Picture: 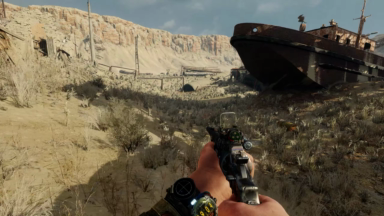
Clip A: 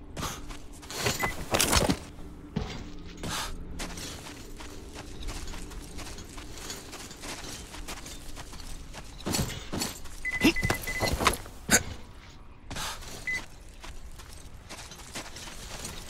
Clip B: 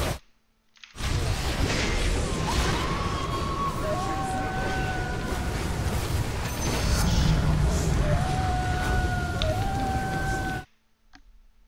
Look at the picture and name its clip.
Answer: A